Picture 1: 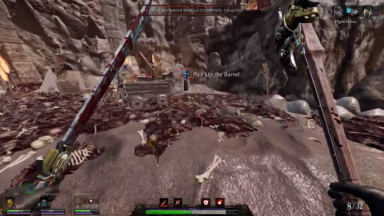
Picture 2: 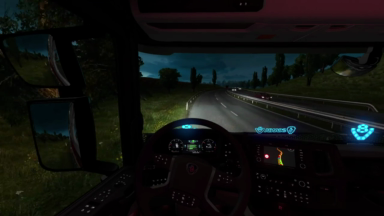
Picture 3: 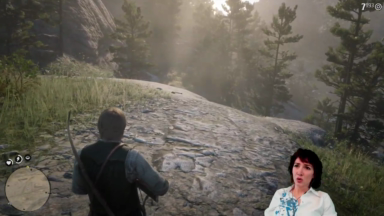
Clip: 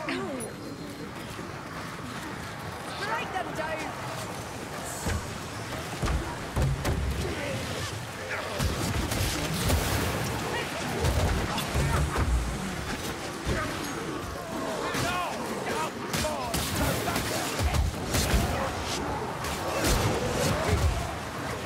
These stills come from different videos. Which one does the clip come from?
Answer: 1